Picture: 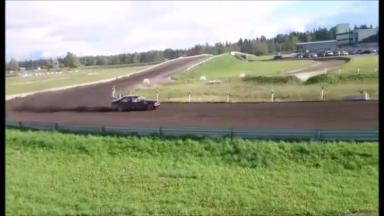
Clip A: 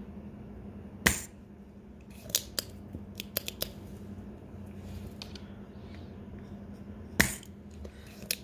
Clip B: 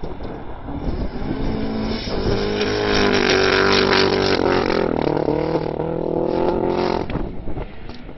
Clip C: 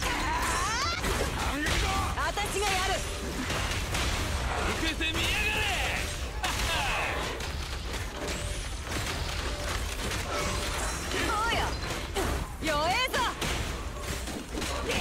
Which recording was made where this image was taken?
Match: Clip B